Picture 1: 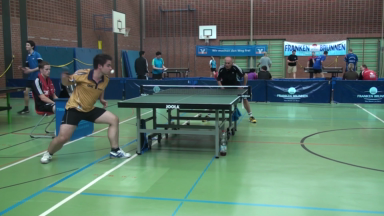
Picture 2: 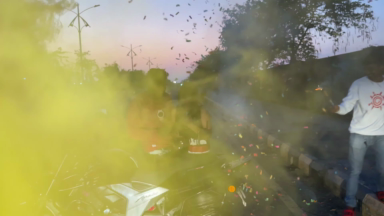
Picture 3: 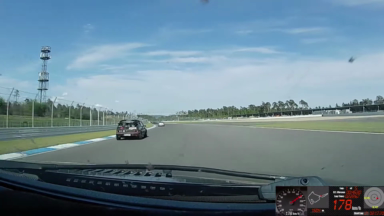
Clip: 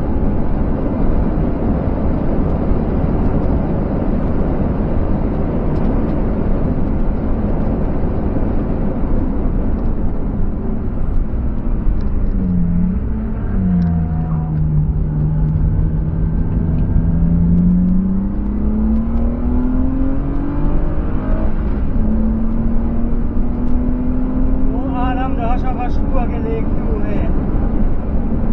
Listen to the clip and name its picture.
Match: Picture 3